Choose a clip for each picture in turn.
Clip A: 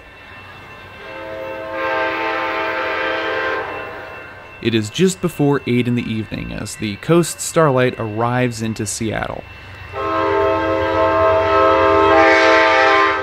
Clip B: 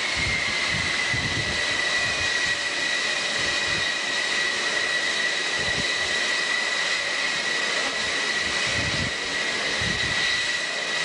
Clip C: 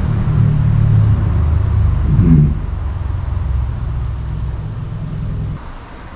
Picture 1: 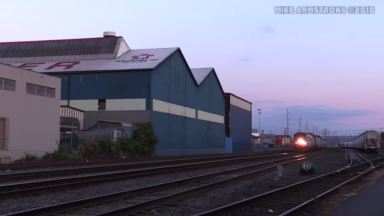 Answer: A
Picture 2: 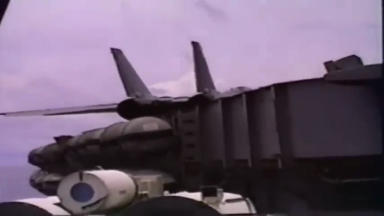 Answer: B